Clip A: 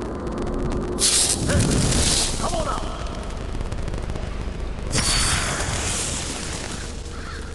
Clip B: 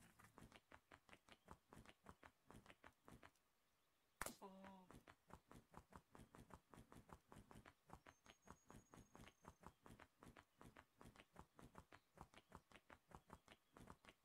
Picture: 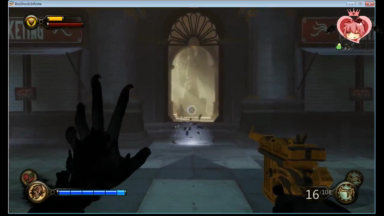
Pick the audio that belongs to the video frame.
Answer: A